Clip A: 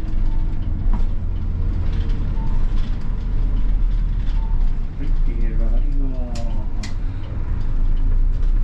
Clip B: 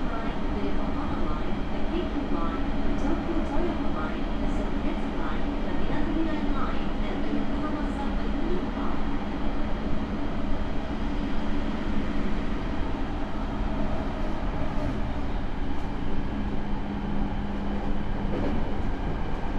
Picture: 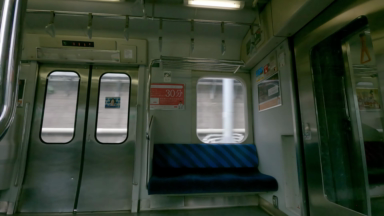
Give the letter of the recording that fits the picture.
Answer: B